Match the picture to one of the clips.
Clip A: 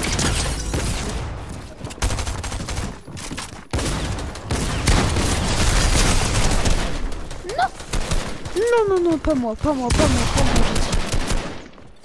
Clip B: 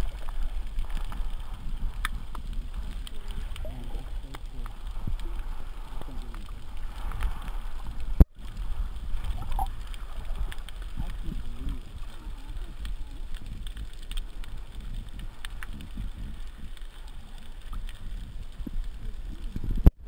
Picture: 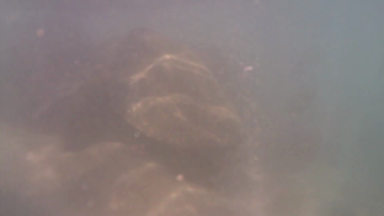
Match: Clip B